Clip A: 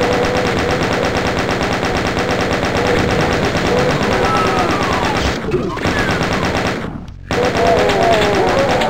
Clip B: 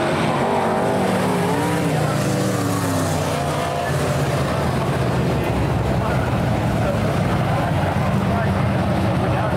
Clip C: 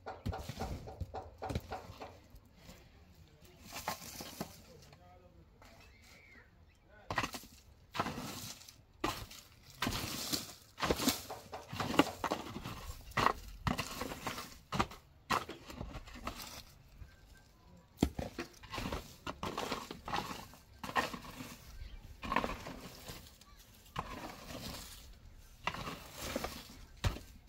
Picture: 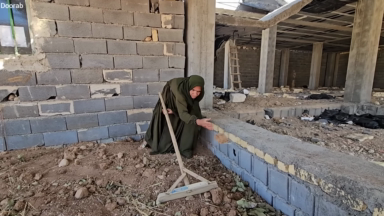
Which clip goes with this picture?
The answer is C